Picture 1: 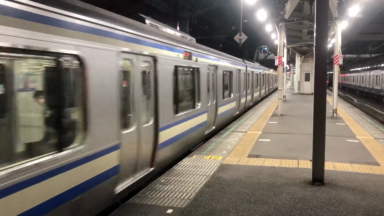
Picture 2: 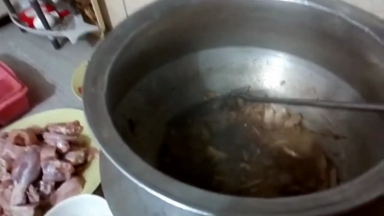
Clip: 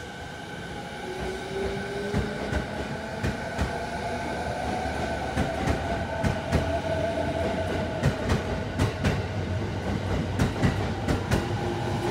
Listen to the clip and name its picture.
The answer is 1